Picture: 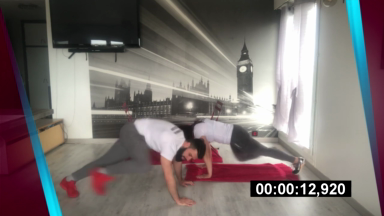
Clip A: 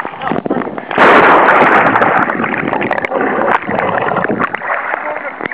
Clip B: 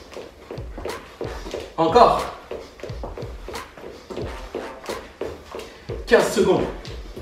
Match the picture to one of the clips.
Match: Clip B